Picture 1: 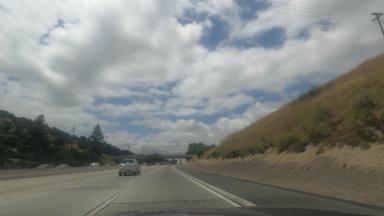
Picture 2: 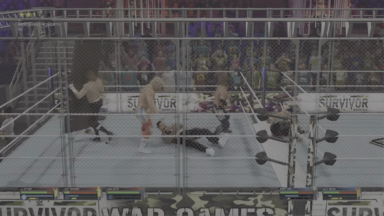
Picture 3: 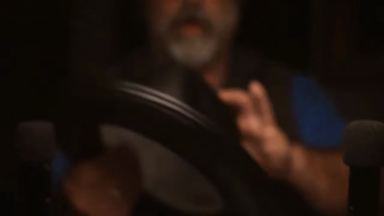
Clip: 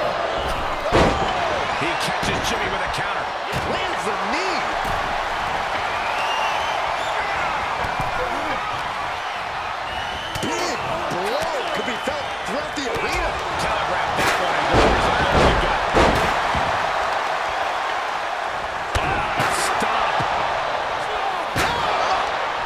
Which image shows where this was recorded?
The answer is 2